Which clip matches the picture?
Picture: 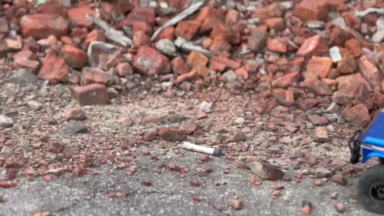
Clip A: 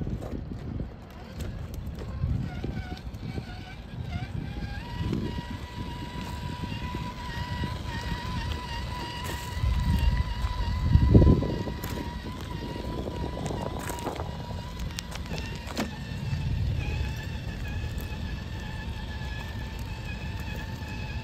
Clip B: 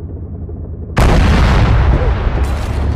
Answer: A